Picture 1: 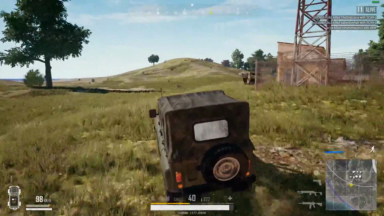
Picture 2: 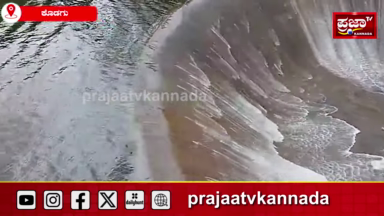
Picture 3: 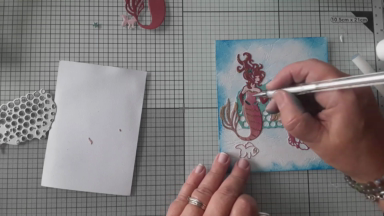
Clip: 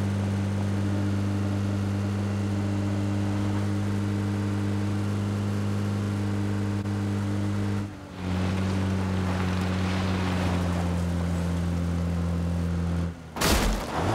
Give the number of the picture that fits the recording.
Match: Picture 1